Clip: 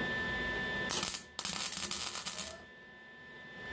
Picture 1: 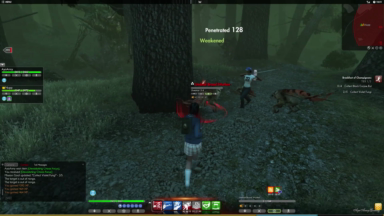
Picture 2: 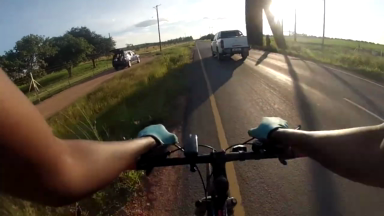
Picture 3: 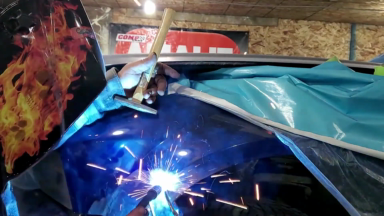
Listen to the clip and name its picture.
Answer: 3